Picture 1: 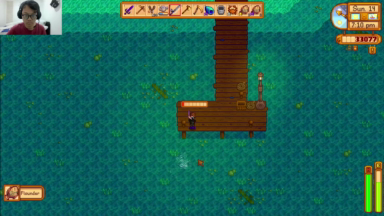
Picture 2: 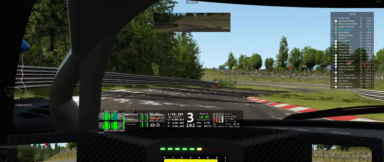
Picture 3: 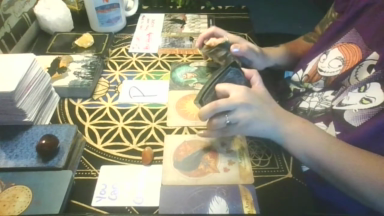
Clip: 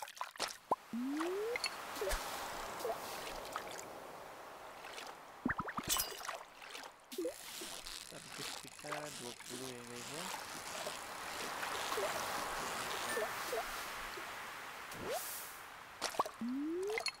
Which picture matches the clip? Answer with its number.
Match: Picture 1